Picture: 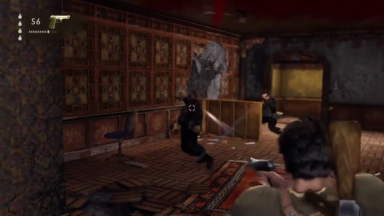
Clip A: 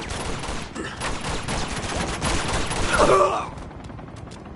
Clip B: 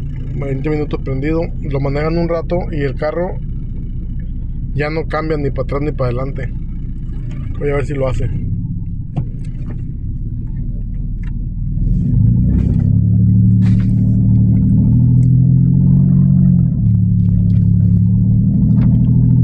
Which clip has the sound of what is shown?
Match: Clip A